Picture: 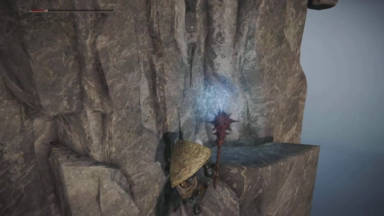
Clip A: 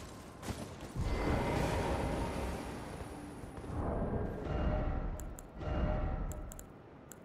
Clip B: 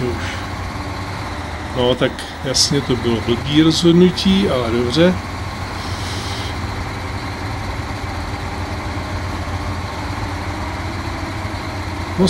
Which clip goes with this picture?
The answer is A